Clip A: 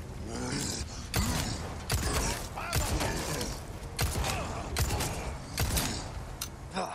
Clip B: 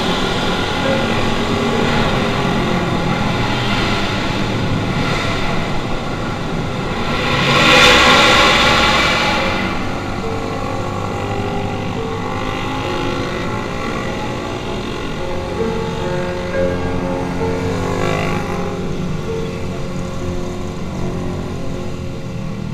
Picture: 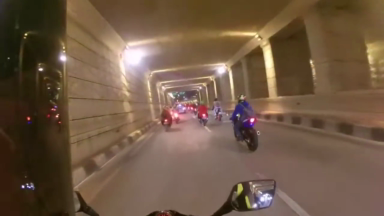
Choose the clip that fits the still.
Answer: B